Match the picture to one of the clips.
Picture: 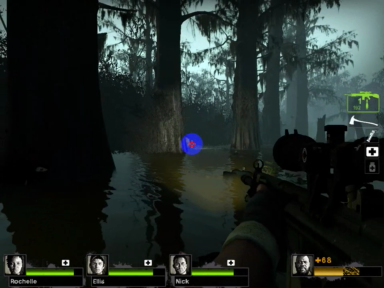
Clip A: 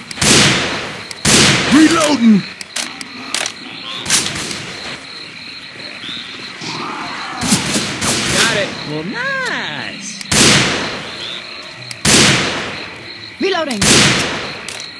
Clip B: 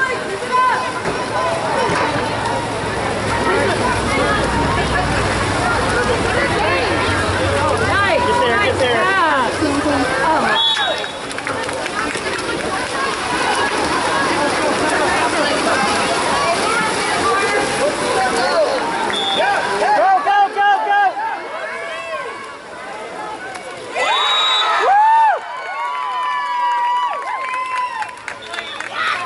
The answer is A